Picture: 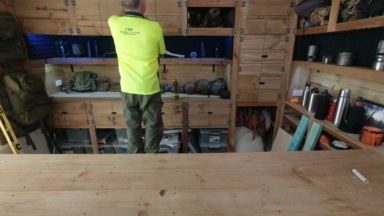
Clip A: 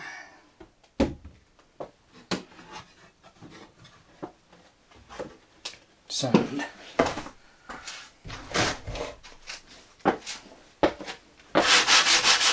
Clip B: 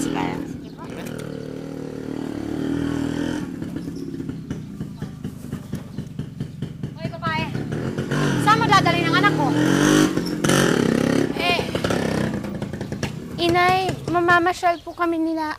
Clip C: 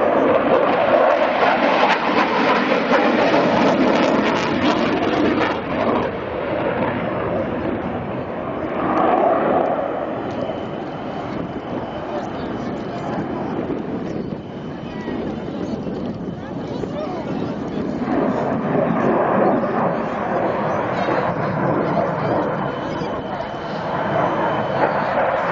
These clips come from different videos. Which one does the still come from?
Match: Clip A